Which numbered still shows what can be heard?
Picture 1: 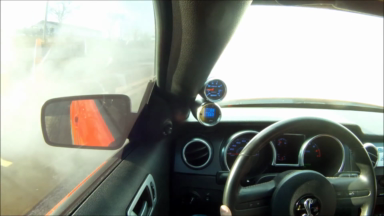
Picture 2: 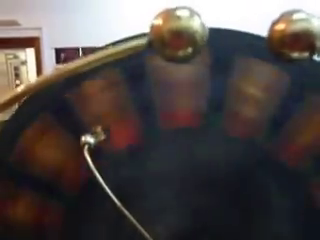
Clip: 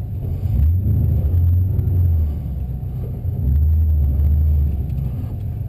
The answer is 1